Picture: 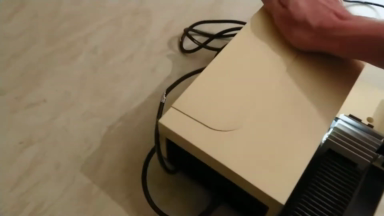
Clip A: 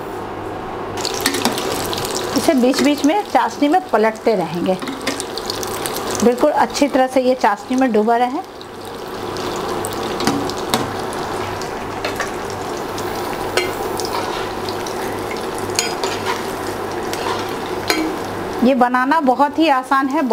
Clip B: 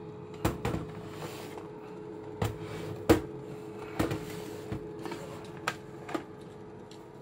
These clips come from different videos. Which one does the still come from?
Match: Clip B